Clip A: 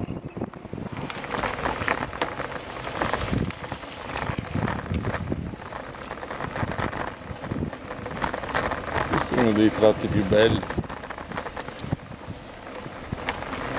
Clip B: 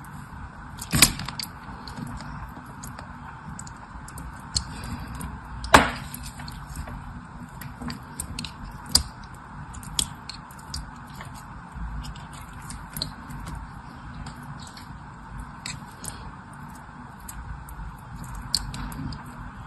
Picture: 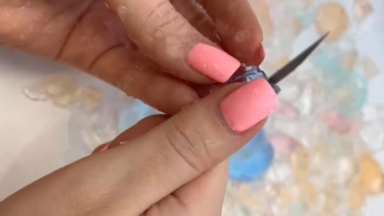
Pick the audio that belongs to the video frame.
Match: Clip B